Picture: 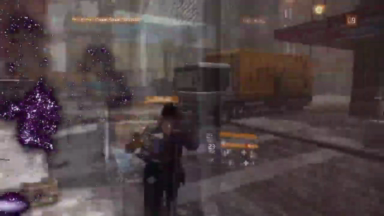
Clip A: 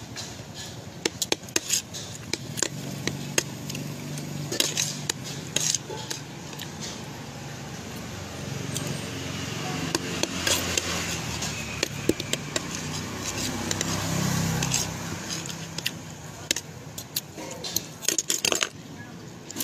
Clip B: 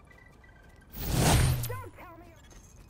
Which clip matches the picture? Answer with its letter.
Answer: B